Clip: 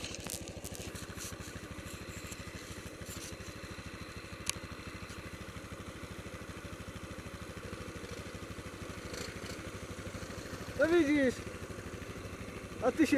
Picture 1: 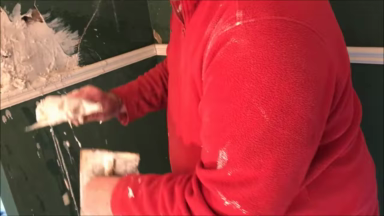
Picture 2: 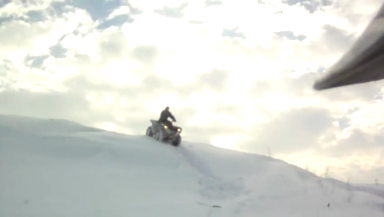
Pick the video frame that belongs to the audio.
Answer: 2